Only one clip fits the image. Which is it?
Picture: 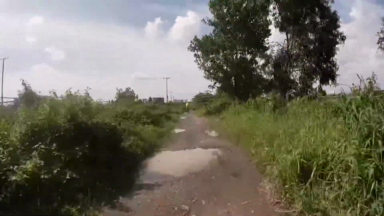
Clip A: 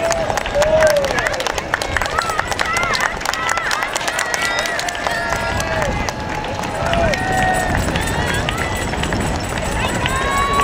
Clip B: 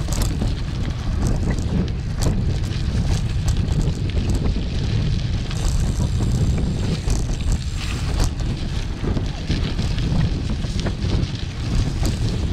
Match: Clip B